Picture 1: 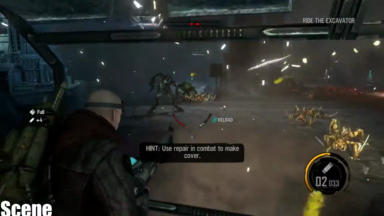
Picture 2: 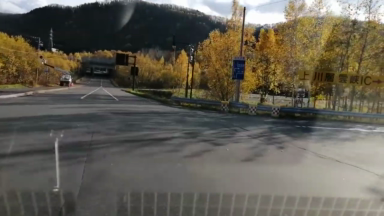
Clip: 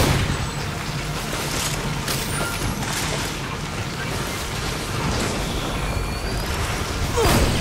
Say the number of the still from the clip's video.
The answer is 1